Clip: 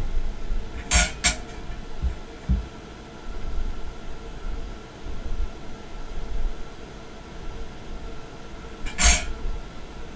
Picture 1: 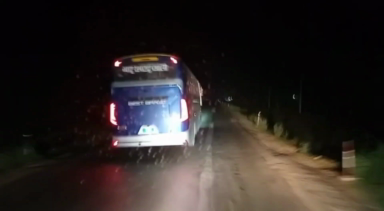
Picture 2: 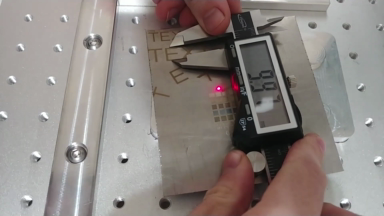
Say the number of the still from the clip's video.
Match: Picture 2